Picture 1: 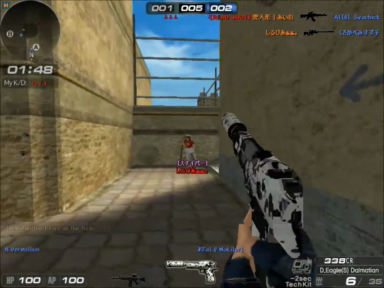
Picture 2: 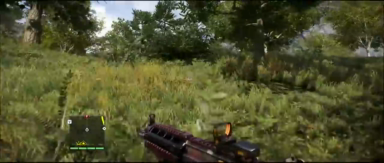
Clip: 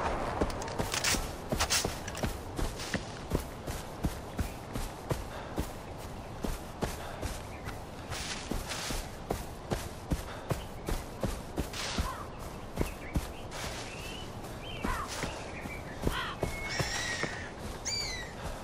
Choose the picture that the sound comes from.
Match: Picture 2